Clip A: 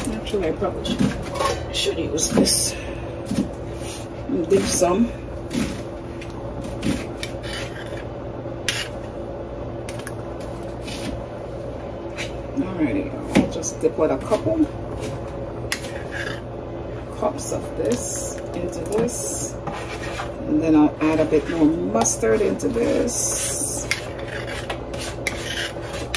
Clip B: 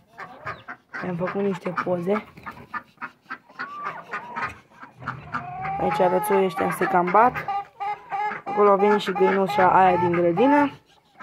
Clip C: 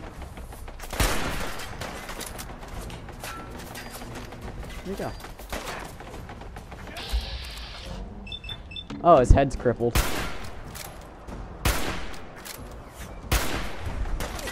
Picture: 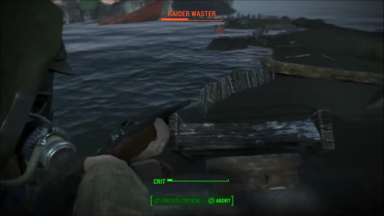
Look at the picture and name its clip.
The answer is C